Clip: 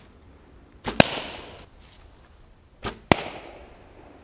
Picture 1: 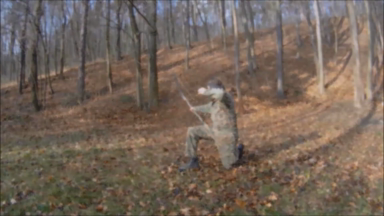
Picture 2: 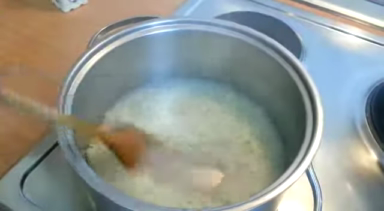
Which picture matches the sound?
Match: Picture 1